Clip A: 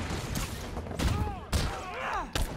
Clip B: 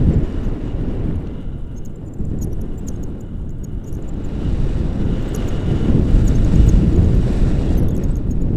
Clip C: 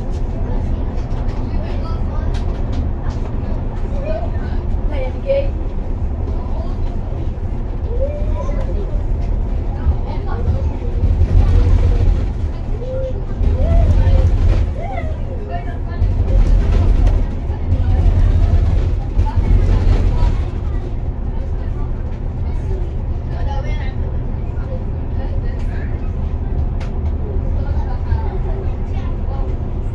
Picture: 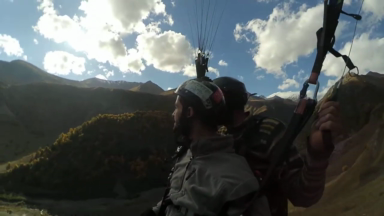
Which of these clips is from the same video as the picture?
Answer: B